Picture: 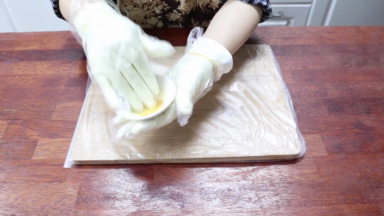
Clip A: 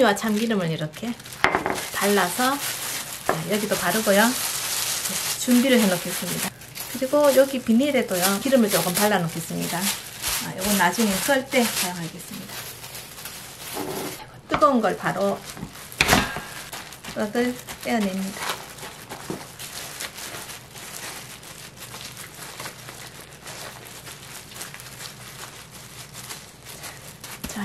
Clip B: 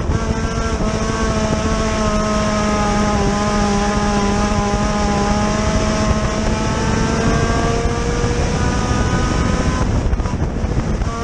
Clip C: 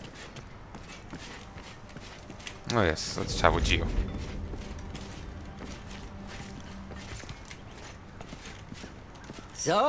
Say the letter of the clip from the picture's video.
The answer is A